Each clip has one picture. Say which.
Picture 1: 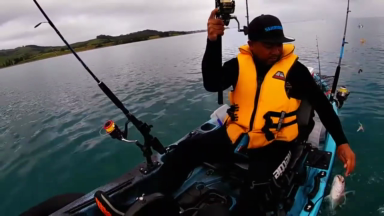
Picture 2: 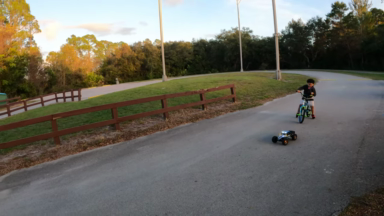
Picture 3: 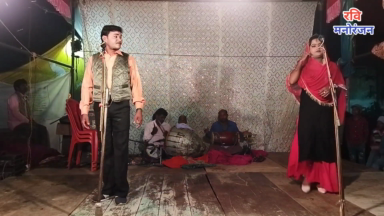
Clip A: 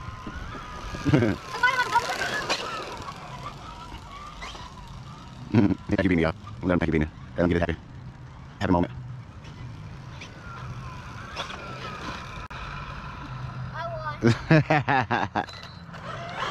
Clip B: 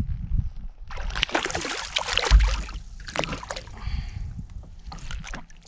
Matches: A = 2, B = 1